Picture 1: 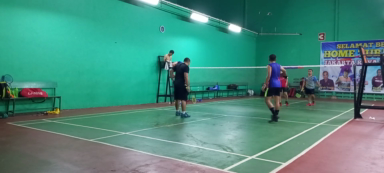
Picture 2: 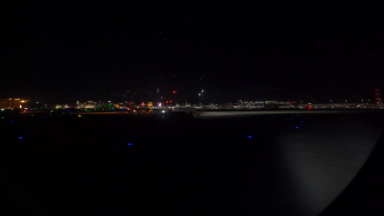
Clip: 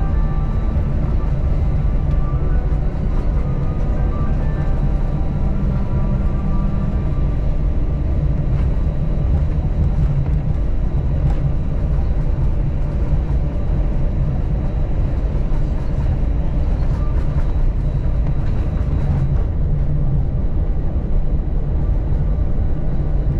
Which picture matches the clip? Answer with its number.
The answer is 2